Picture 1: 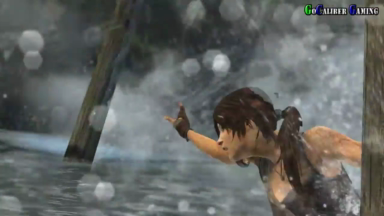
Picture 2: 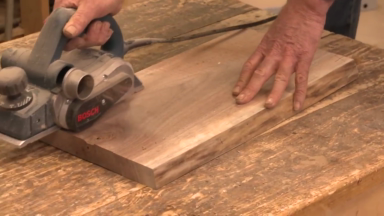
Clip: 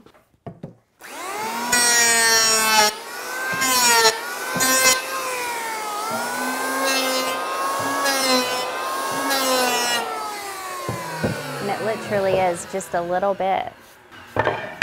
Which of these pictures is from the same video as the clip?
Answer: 2